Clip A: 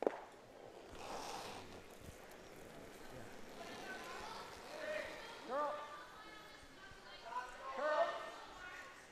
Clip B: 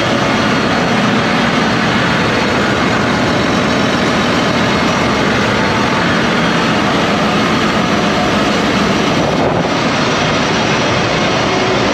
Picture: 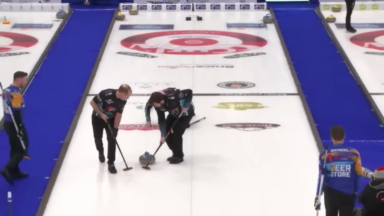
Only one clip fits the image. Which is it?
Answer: A